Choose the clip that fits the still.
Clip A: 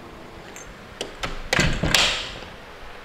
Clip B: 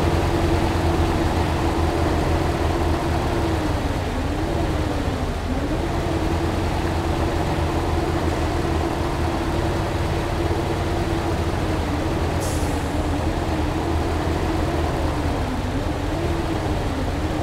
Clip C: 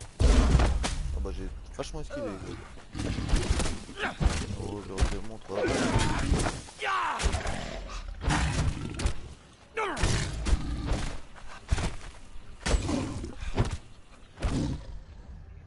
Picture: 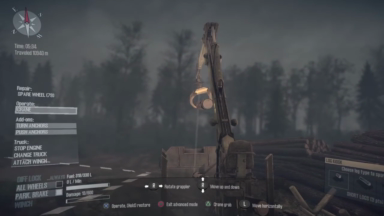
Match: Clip B